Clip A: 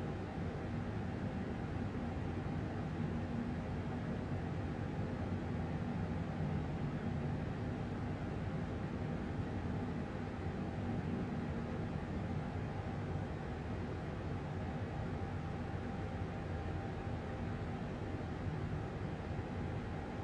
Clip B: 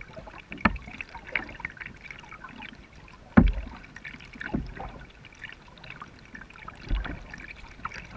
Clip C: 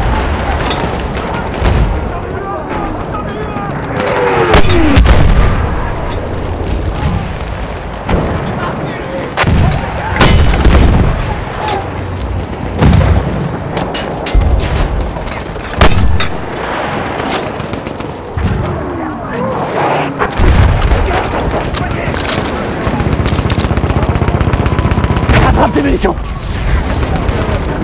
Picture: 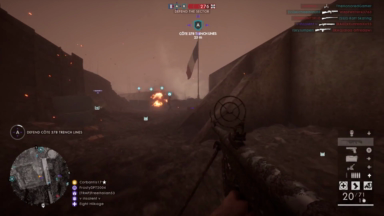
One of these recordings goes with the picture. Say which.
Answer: C